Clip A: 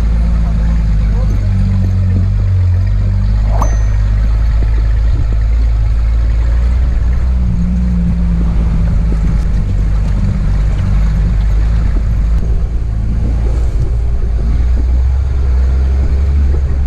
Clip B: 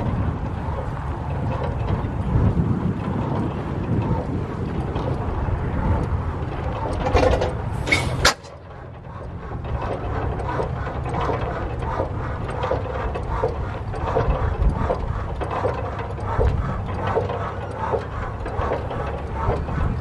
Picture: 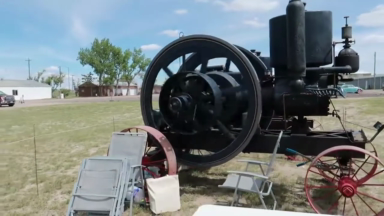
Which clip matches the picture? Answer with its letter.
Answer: B